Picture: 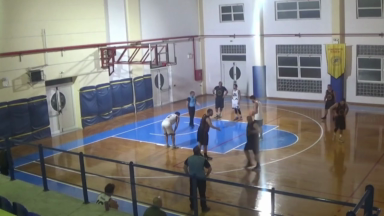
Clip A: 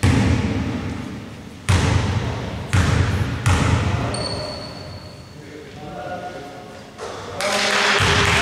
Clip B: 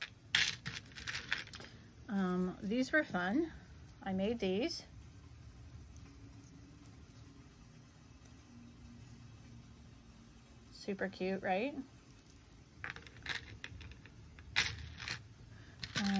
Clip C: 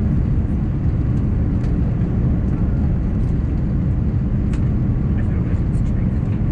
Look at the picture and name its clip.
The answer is A